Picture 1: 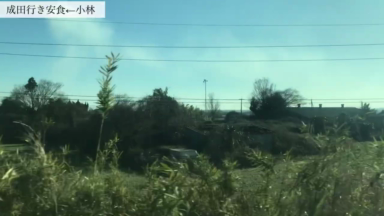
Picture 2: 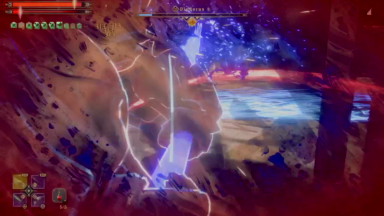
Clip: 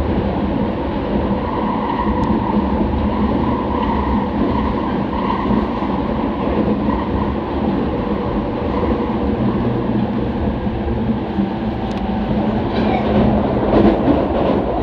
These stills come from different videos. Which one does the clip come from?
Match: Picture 1